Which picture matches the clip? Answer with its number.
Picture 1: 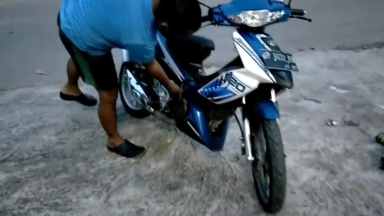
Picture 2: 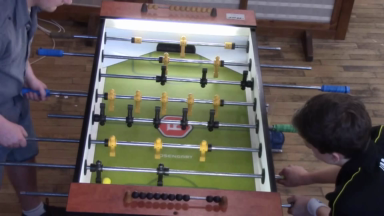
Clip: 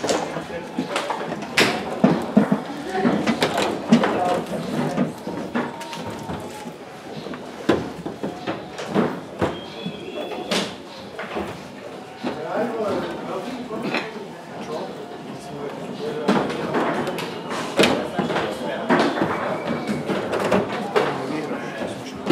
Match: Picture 2